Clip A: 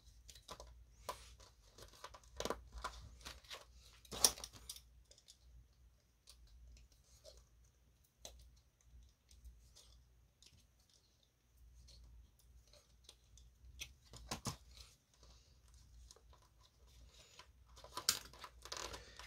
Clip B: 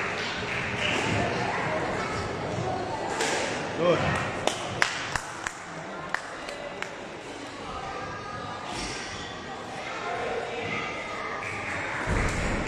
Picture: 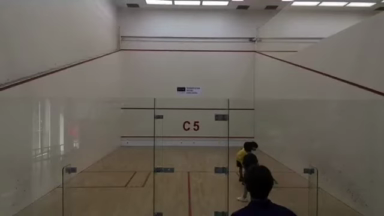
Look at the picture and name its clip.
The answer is B